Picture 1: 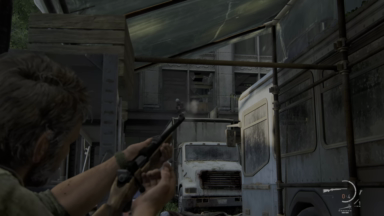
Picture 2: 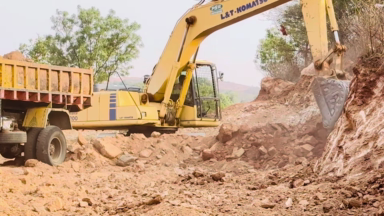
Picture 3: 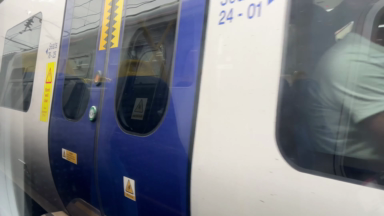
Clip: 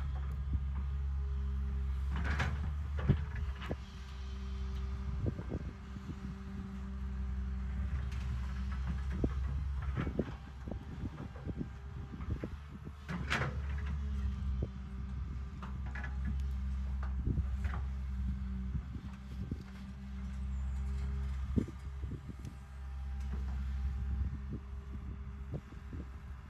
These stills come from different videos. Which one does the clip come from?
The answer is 2